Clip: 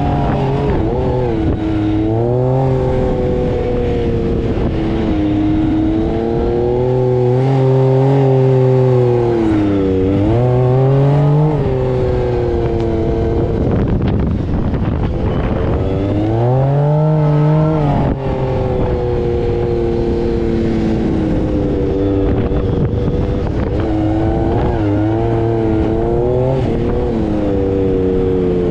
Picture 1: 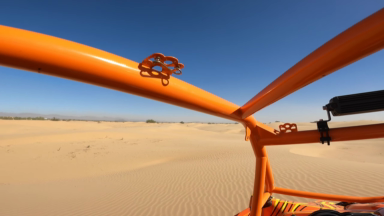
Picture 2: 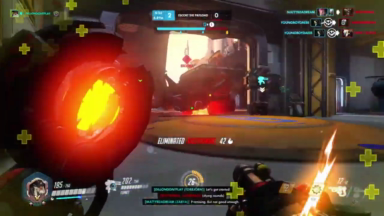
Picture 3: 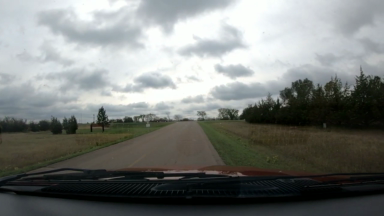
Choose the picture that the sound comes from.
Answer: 1